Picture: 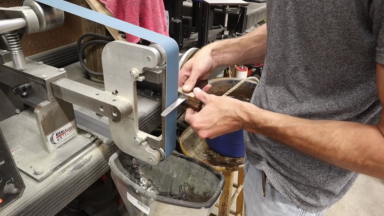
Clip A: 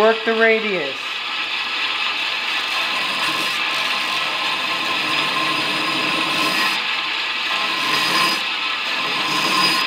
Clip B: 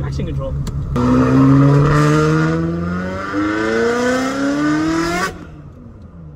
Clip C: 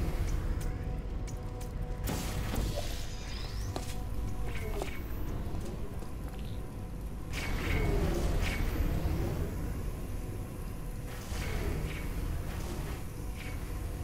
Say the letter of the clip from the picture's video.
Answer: A